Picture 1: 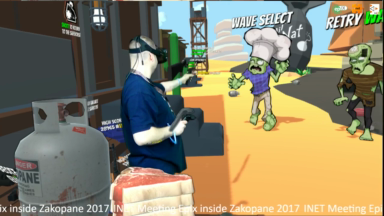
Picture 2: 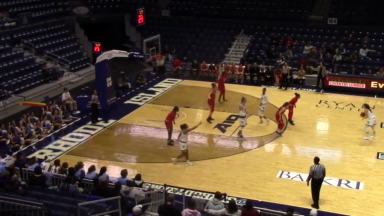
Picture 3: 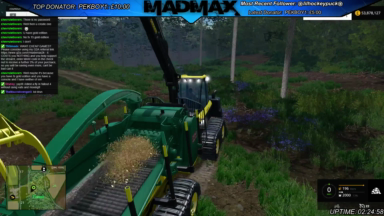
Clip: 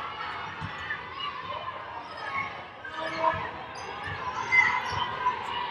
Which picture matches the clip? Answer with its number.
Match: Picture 2